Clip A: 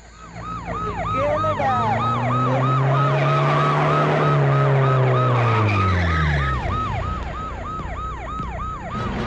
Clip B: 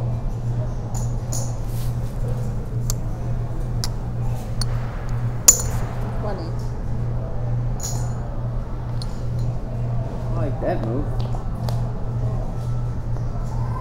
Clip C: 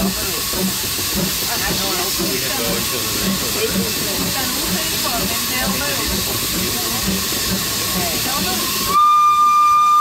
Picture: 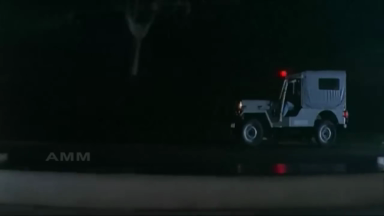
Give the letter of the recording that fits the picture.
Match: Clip A